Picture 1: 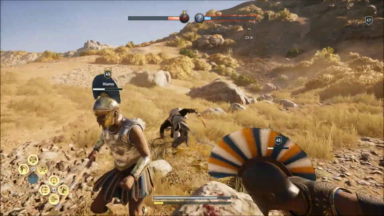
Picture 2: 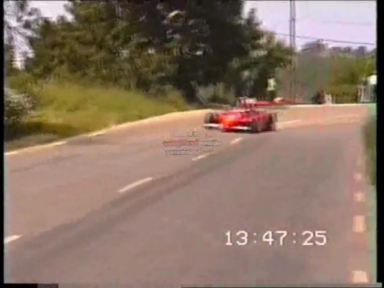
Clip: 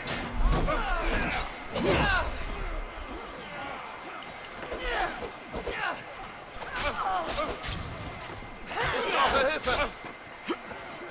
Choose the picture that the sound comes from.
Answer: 1